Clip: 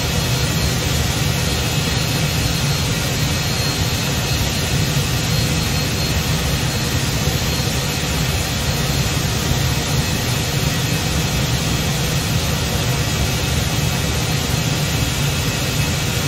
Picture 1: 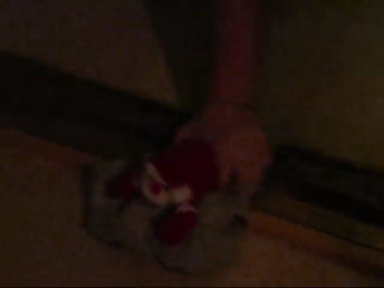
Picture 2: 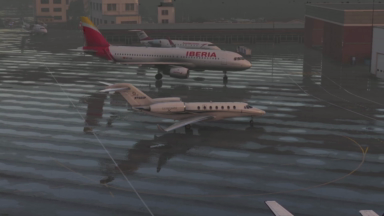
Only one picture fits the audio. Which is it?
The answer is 2